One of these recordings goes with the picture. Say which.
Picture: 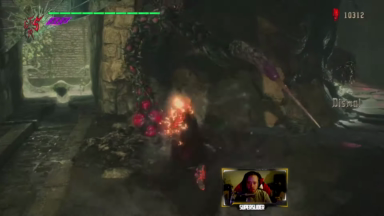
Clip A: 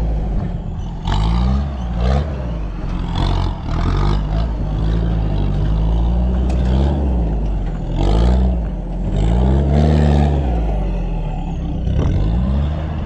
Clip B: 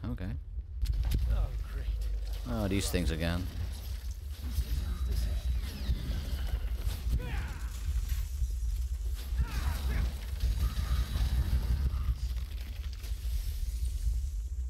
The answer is B